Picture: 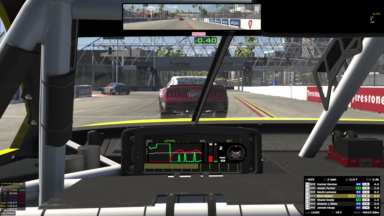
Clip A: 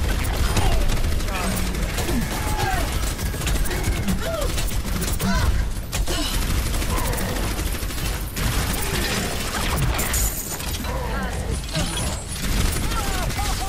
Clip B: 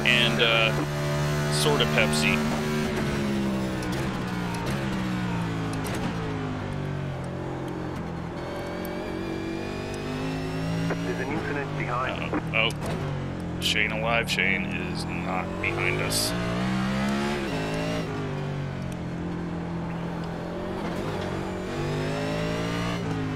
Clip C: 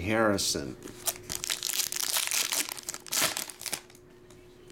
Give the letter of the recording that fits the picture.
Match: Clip B